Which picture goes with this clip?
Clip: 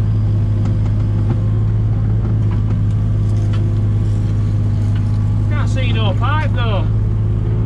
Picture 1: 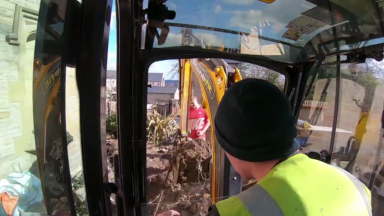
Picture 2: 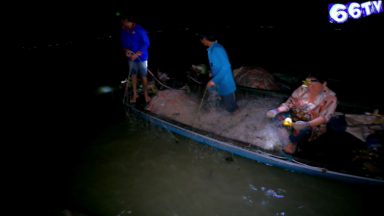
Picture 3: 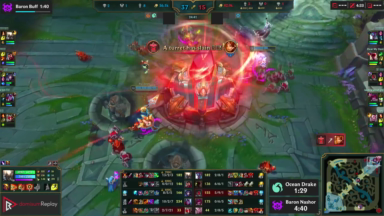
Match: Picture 1